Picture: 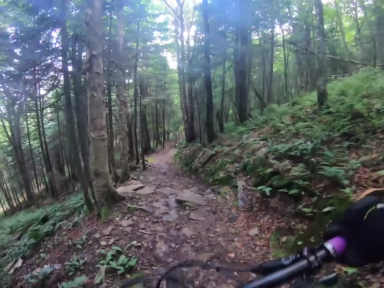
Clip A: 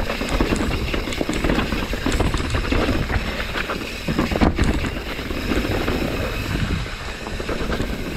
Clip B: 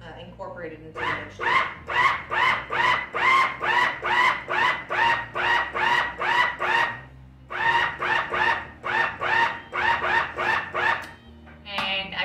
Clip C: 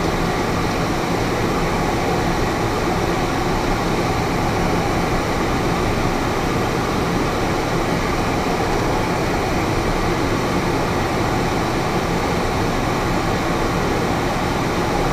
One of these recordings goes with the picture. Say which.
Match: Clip A